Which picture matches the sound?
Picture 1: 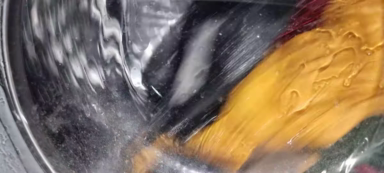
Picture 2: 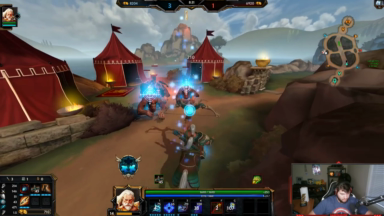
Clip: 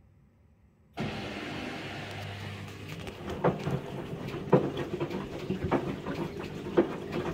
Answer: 1